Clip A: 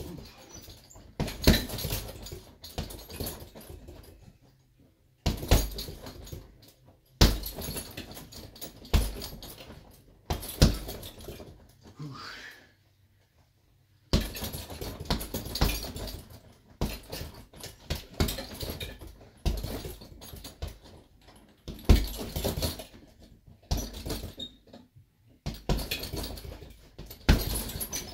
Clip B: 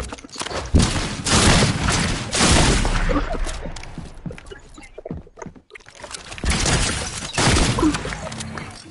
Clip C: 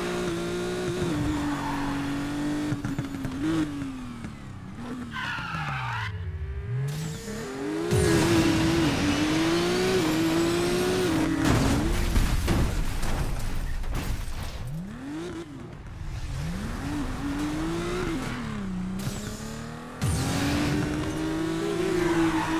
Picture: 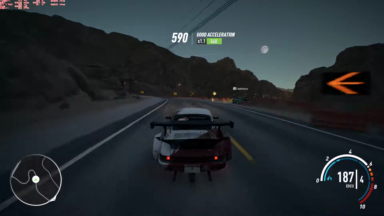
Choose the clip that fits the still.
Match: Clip C